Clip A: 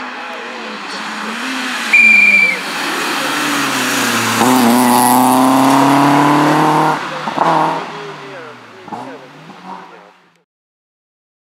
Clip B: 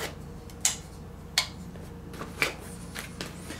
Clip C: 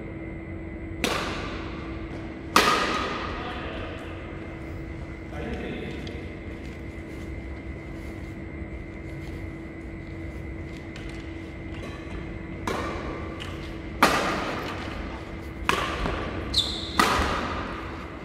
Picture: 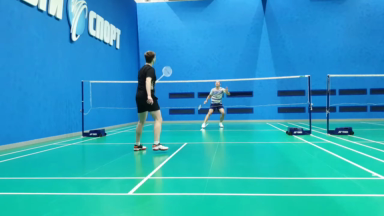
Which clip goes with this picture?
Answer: C